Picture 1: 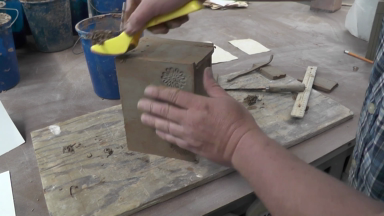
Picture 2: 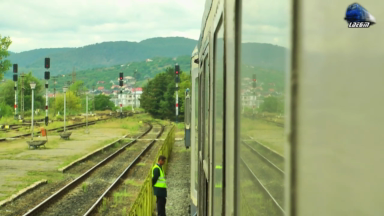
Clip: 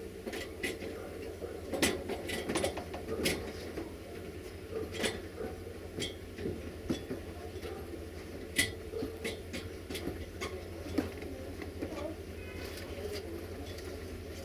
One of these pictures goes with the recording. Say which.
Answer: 2